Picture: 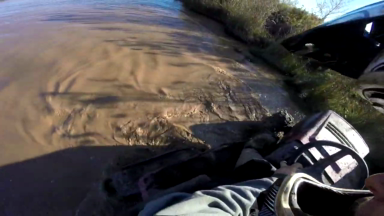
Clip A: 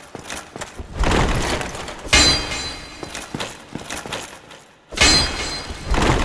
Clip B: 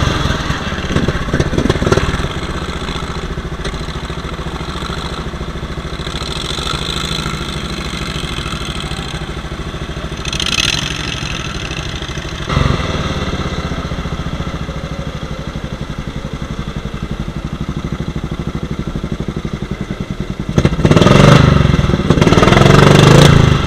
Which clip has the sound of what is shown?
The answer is B